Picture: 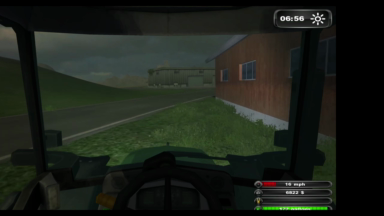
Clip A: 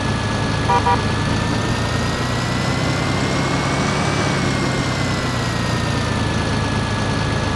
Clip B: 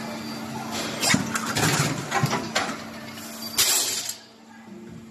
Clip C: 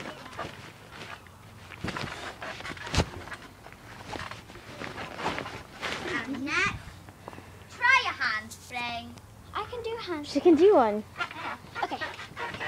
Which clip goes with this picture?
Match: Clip A